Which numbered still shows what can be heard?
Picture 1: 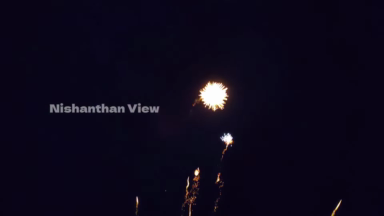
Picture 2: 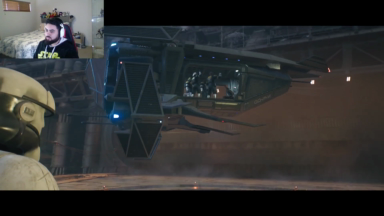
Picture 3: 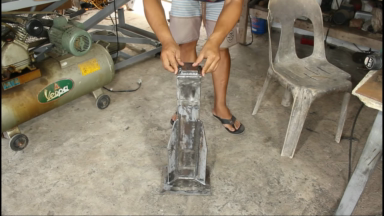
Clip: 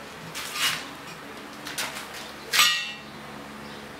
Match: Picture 3